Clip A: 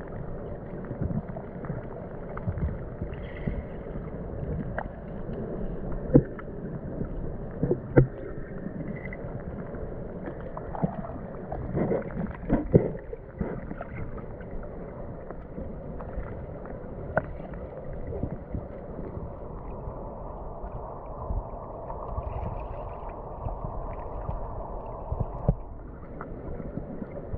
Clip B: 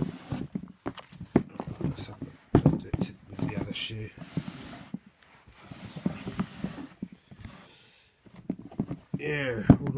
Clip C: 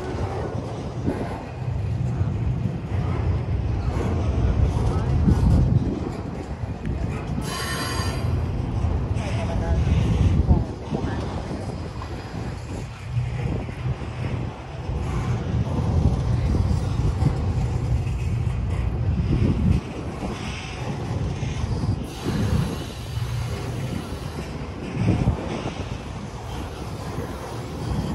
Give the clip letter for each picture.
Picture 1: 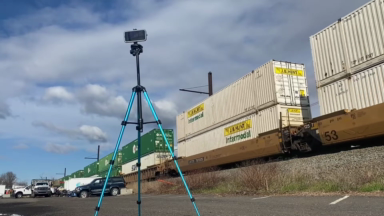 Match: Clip C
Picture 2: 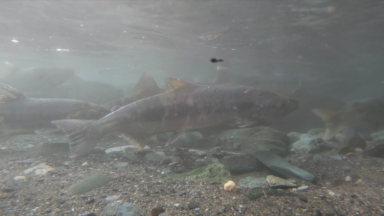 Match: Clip A